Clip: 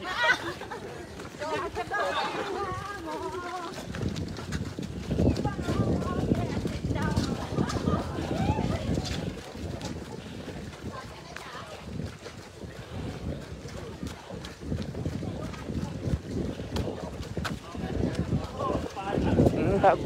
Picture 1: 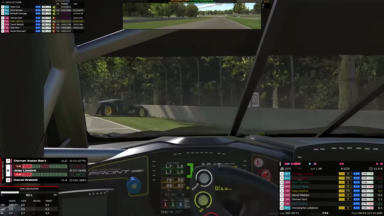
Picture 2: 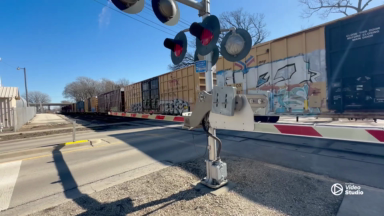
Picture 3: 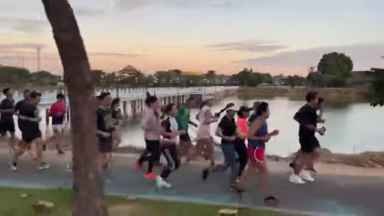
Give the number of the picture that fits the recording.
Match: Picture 3